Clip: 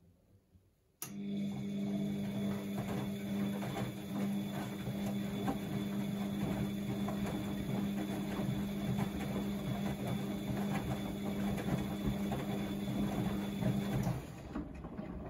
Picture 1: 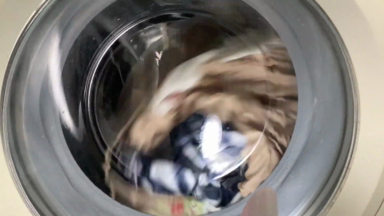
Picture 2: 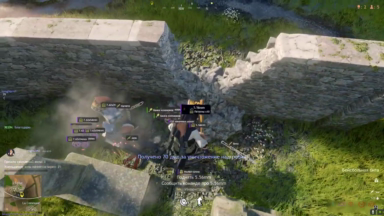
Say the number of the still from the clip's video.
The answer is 1